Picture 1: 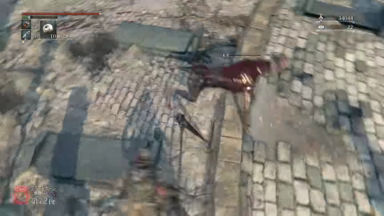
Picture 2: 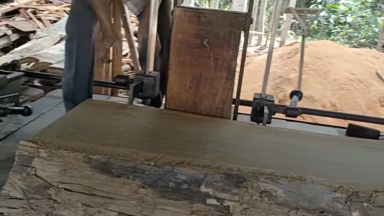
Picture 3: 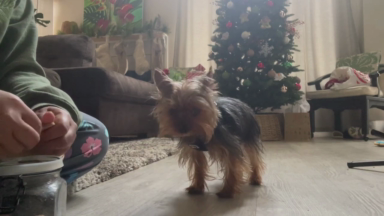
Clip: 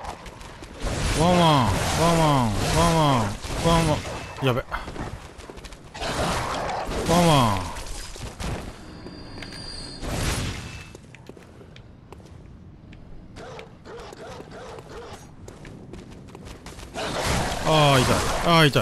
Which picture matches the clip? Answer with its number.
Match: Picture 1